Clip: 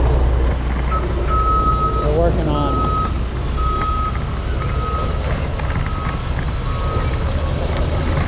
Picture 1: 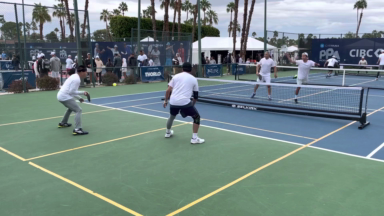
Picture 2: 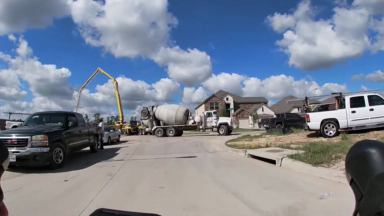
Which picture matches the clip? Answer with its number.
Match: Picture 2